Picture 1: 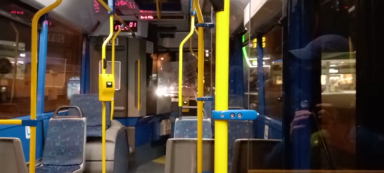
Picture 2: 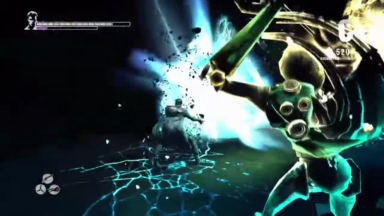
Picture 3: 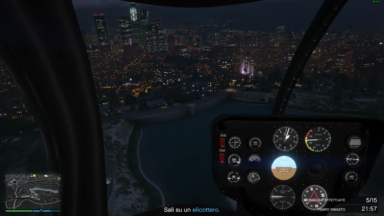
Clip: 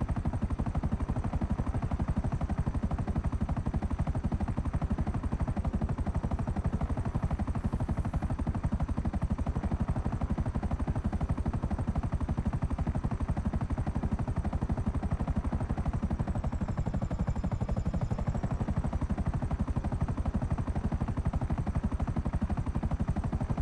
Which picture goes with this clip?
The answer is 3